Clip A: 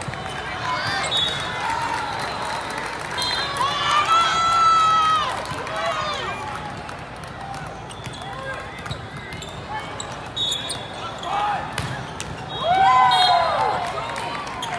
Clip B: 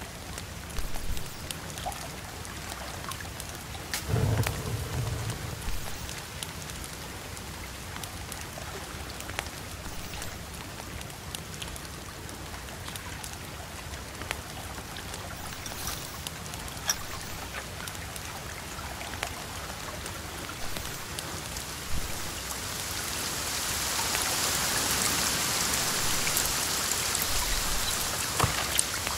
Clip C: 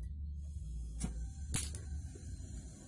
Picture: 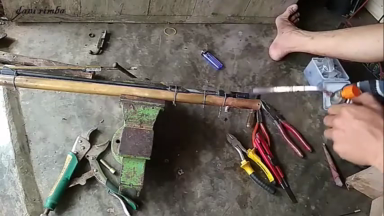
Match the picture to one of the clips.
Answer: C